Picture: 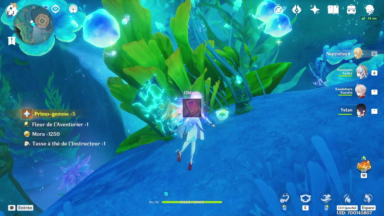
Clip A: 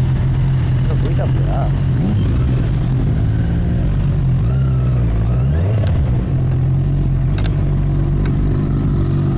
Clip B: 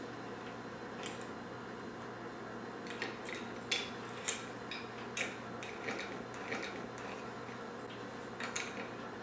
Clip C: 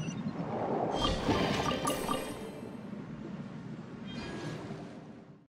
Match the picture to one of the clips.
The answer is C